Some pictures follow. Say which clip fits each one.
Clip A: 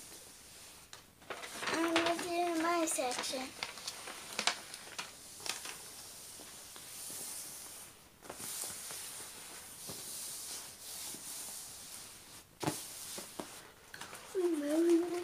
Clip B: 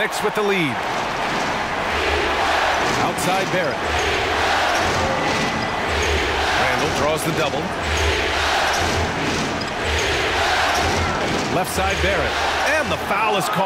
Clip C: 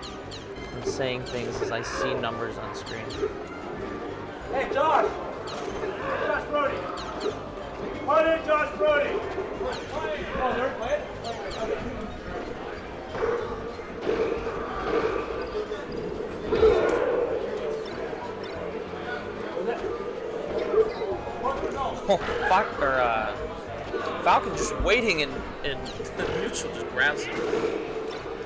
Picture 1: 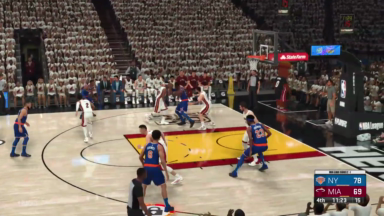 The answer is B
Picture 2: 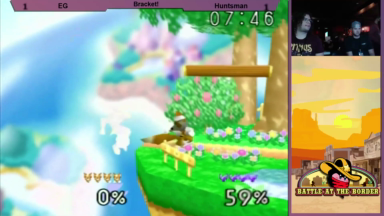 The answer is C